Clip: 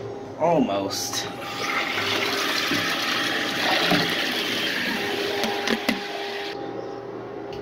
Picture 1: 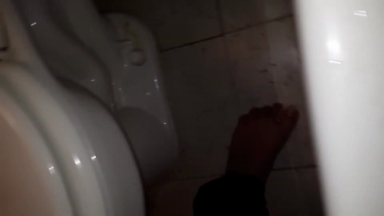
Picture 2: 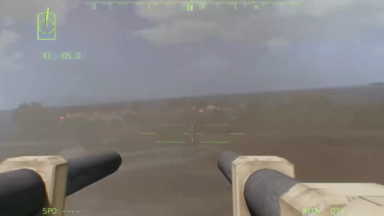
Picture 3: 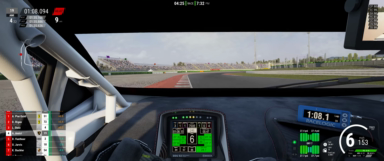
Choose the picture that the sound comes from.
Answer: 1